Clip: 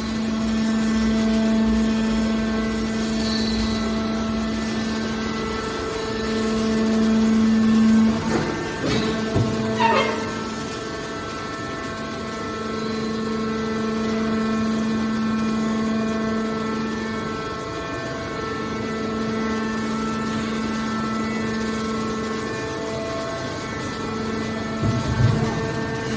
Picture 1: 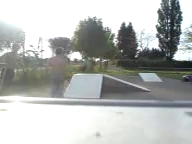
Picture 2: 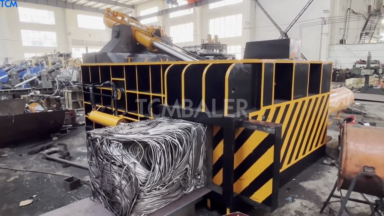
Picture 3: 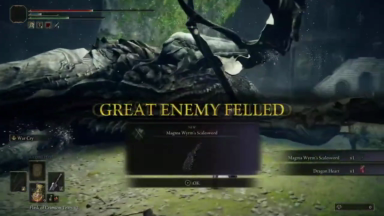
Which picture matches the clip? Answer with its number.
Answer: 2